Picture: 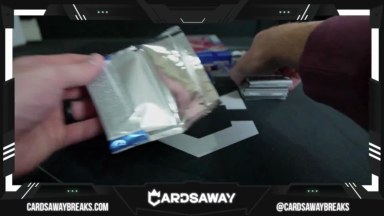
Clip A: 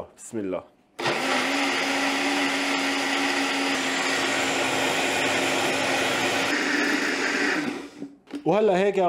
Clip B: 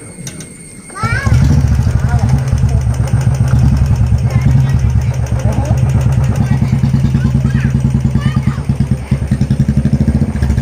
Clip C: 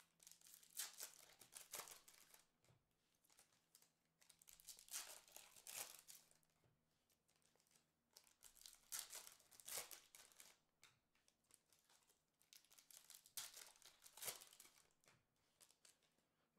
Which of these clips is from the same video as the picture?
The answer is C